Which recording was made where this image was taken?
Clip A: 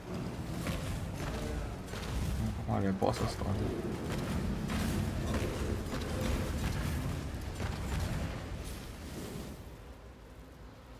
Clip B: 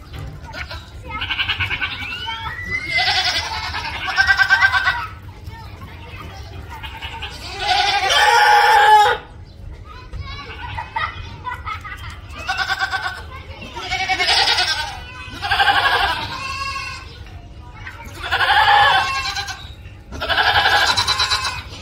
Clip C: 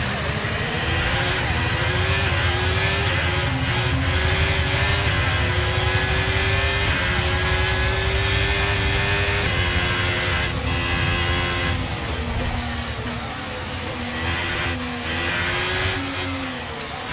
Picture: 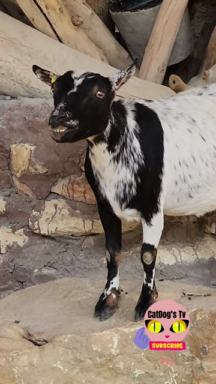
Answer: B